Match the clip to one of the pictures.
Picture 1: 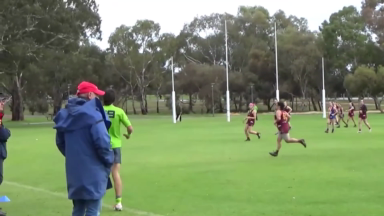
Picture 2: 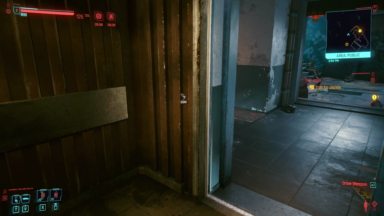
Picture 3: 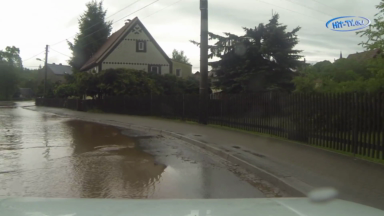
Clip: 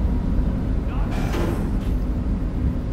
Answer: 2